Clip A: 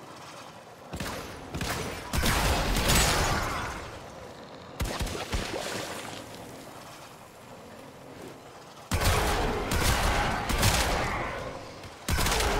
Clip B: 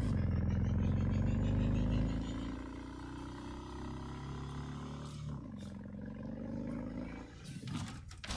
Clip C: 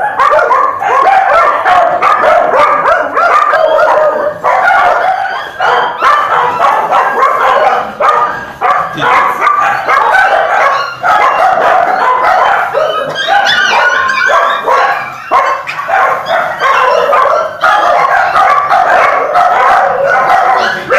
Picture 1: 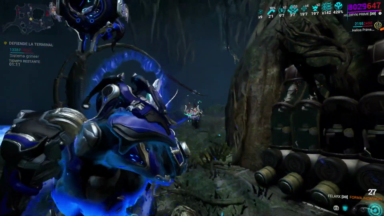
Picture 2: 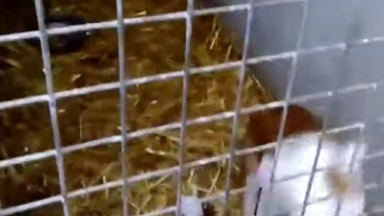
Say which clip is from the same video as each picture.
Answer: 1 A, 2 C